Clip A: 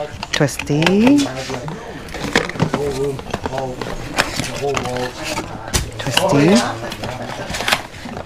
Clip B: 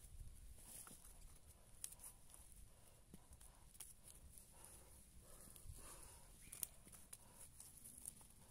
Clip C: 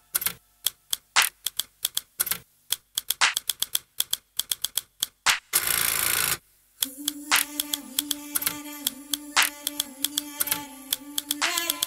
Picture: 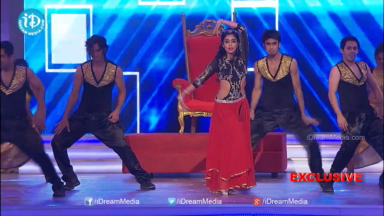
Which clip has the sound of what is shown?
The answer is C